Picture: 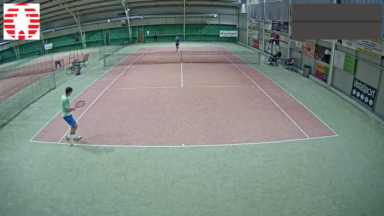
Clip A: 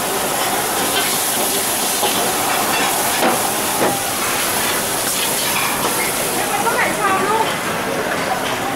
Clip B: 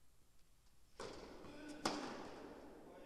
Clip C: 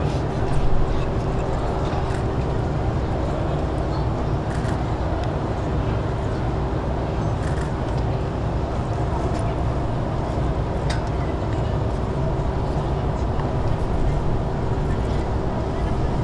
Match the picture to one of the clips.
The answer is B